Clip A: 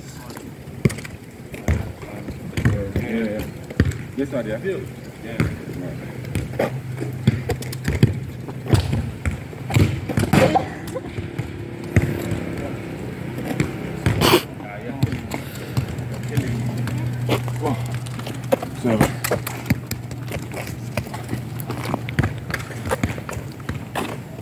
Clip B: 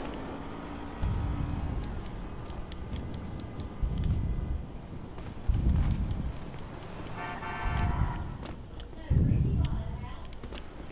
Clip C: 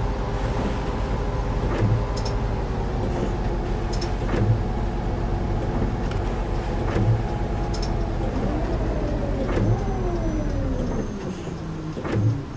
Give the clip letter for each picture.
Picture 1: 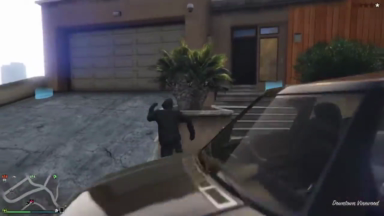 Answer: B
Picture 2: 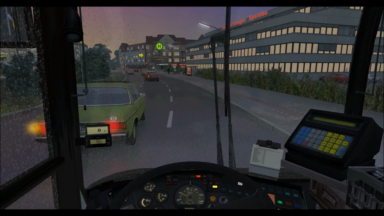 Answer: C